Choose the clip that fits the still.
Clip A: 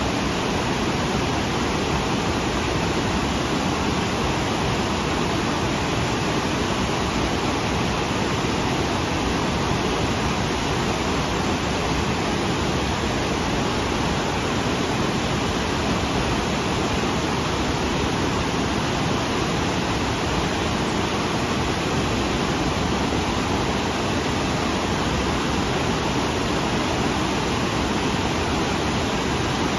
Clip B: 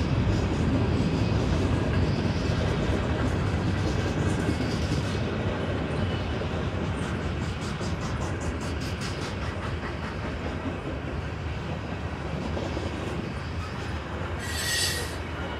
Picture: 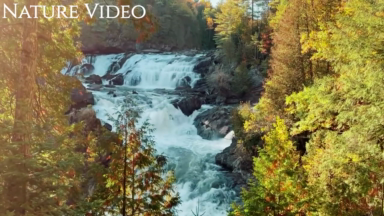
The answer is A